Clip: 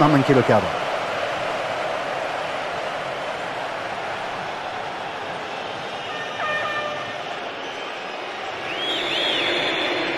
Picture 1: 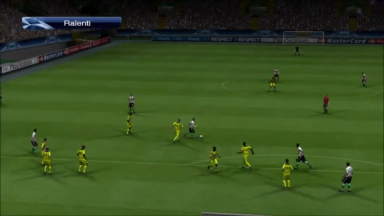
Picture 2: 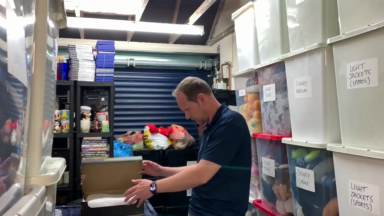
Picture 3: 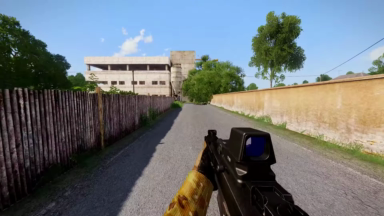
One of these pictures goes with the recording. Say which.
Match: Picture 1